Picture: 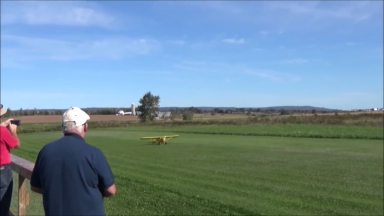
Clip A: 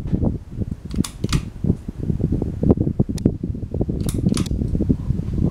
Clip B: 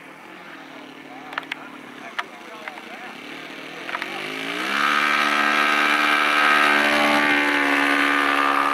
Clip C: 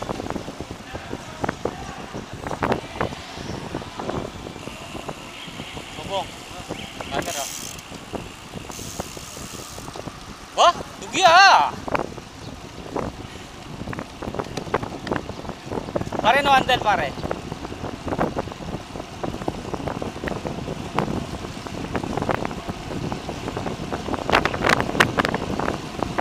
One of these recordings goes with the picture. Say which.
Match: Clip B